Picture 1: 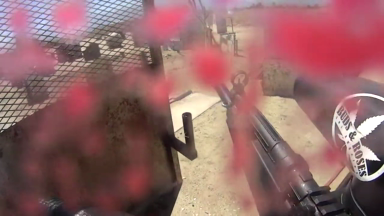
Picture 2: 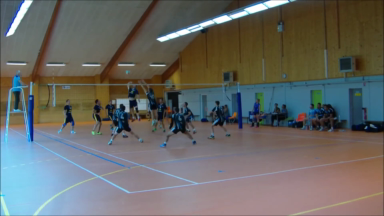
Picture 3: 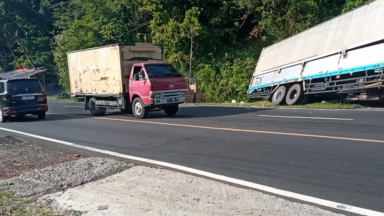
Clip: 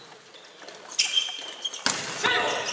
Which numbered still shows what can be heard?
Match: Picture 2